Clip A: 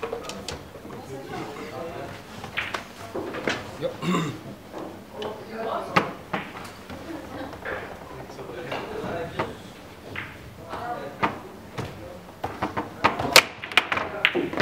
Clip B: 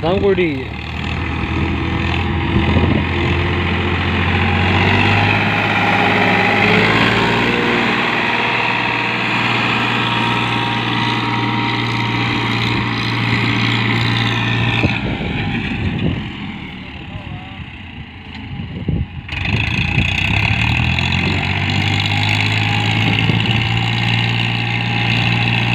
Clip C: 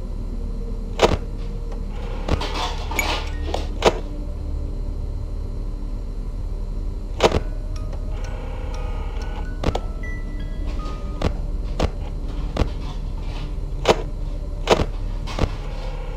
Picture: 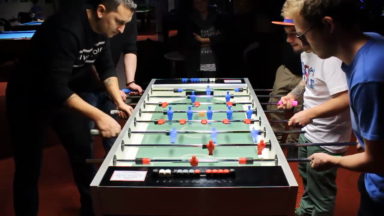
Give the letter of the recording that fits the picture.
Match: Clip A